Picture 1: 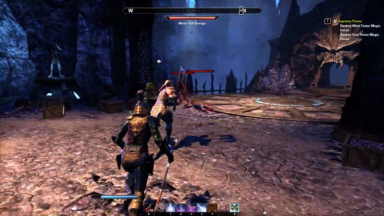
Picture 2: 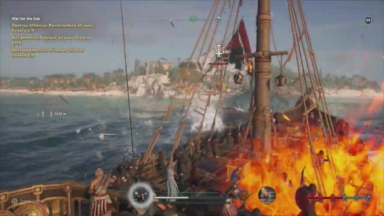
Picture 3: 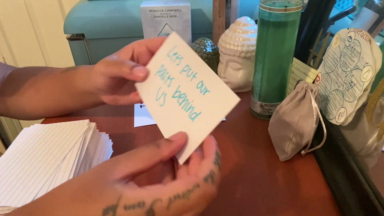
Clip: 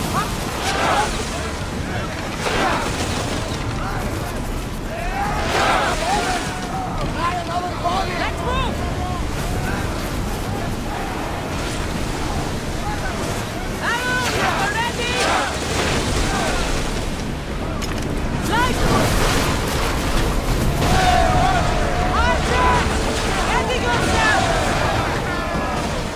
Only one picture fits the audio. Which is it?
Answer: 2